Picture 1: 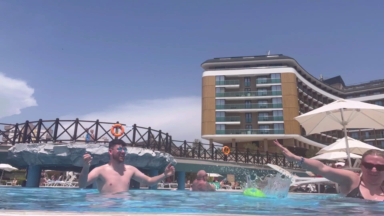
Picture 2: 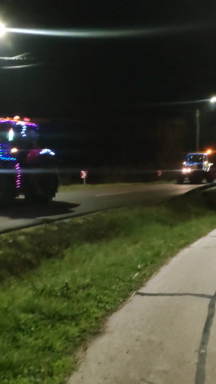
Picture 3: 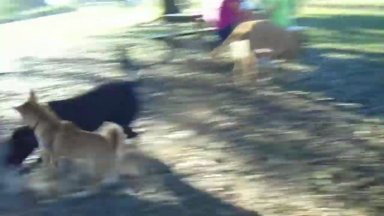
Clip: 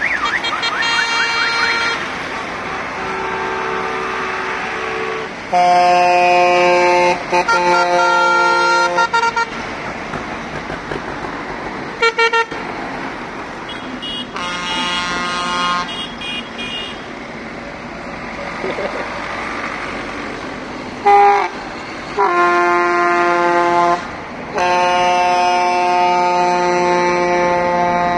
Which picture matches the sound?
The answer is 2